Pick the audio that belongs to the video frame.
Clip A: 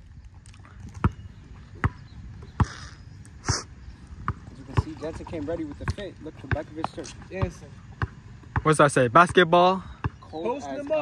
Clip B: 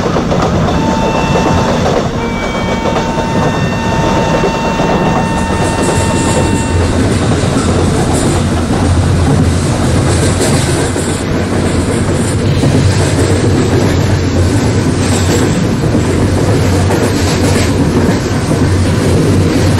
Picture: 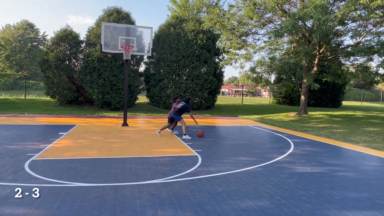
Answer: A